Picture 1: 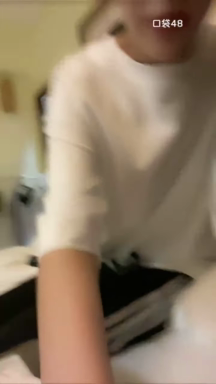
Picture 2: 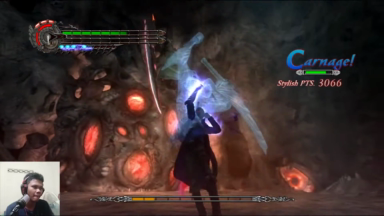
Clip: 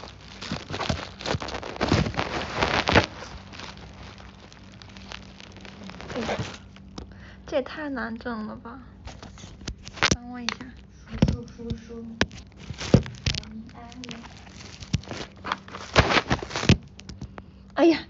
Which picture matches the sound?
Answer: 1